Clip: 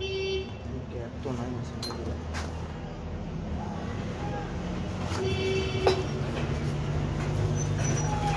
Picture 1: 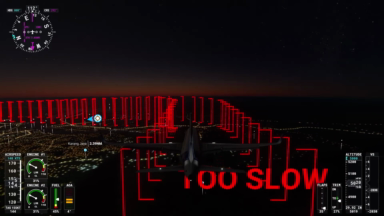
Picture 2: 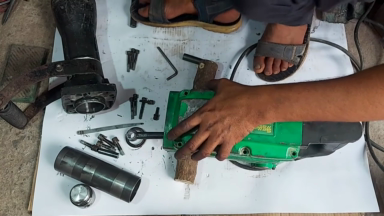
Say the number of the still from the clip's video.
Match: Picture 2